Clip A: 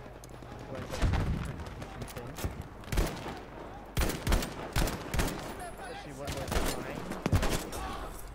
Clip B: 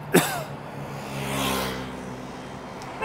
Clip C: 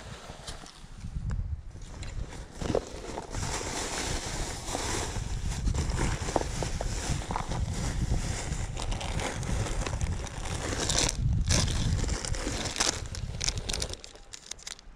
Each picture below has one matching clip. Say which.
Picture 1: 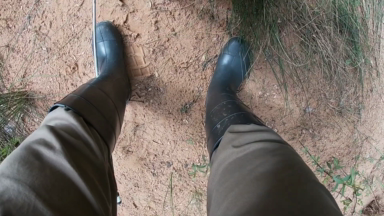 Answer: C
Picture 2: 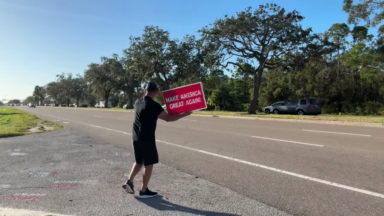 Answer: B